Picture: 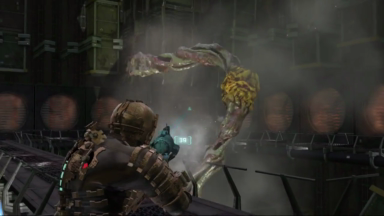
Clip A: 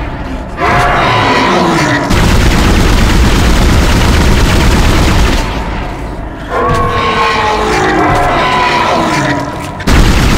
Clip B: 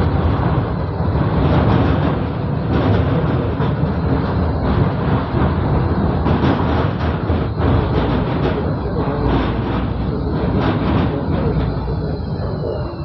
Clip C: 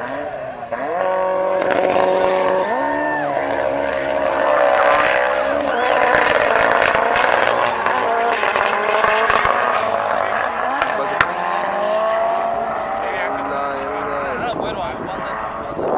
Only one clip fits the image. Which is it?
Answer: A